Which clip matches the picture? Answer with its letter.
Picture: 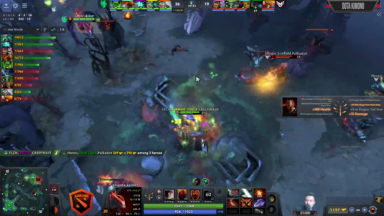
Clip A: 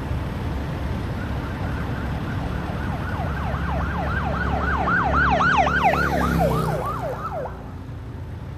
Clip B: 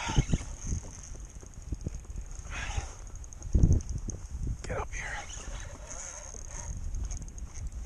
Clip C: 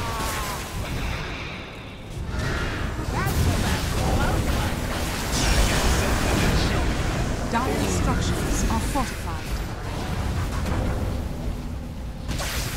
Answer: C